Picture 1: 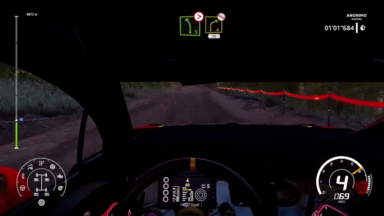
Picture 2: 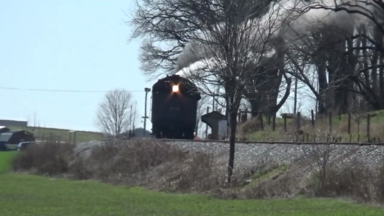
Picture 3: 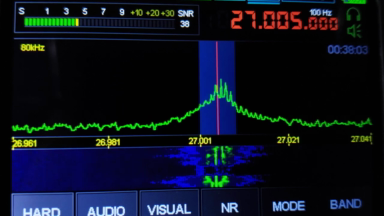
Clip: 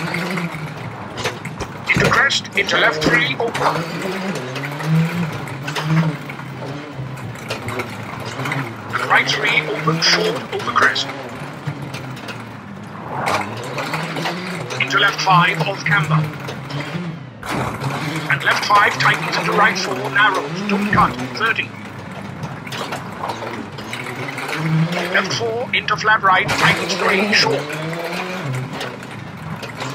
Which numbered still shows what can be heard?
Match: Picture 1